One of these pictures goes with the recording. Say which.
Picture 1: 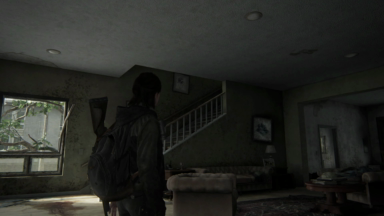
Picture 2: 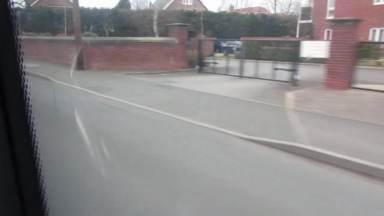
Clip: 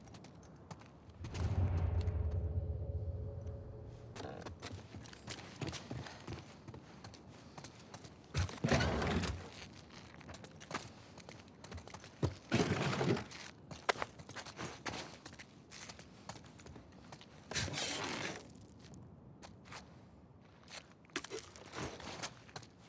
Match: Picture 1